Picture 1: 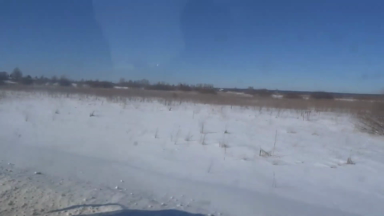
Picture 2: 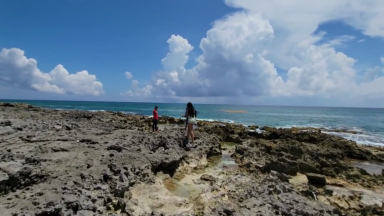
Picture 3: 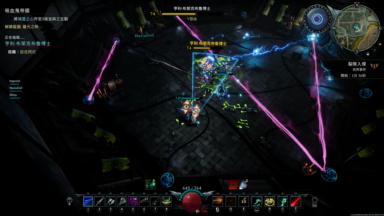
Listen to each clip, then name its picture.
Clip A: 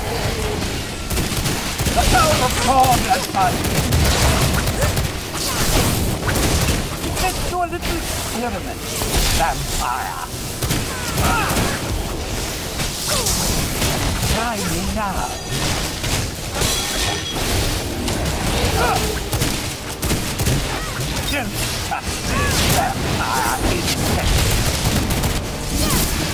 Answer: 3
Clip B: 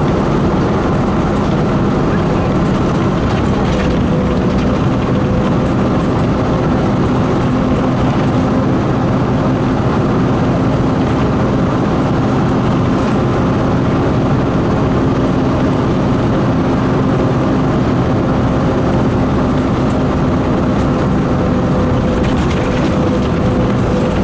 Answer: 1